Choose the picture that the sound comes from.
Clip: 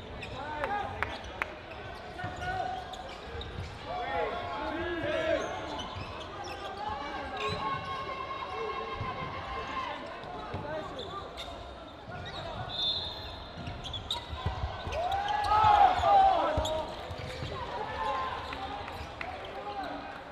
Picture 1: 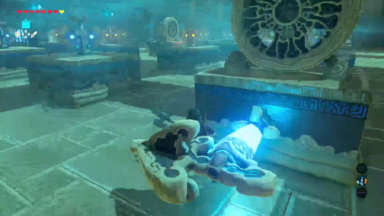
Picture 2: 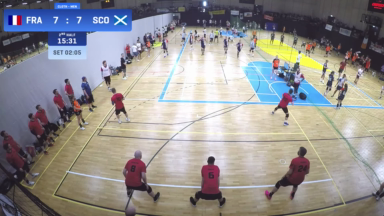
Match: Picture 2